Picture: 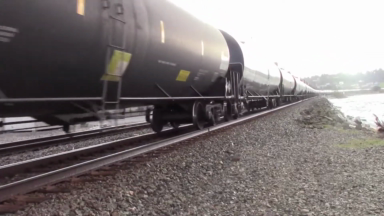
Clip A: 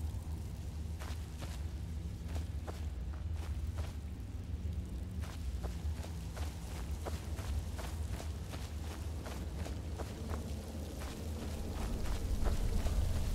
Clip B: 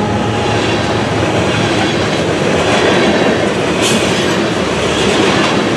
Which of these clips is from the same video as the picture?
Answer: B